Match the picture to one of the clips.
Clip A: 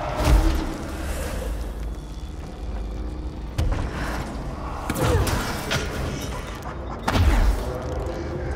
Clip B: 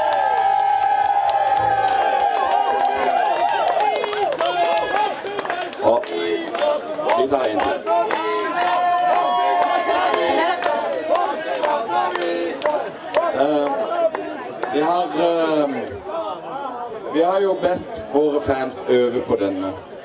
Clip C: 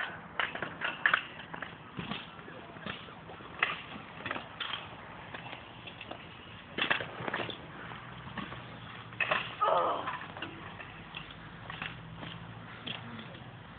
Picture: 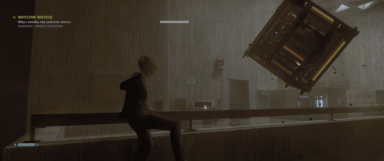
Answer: A